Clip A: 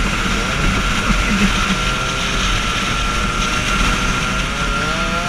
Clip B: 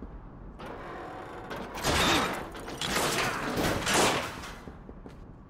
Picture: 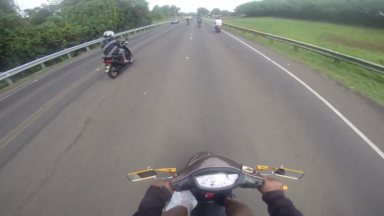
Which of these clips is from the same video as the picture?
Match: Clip A